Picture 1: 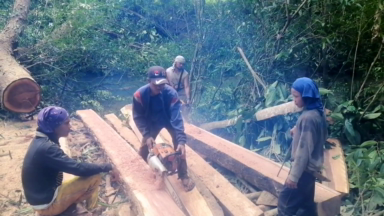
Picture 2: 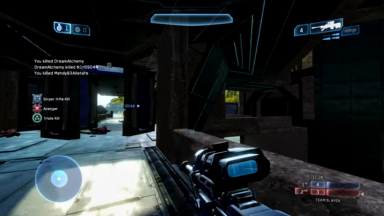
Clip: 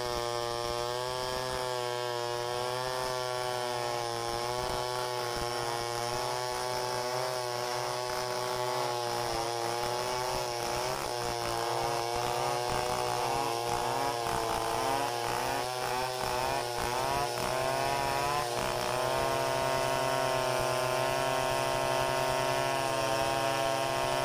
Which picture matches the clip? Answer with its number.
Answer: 1